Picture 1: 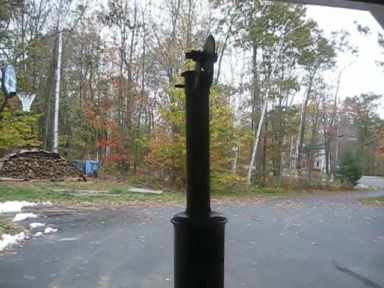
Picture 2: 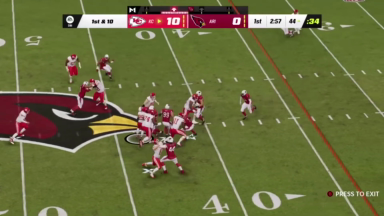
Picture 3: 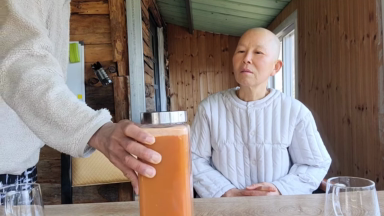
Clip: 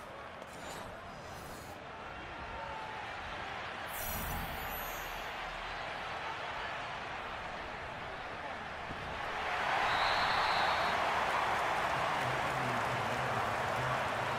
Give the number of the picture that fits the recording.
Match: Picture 2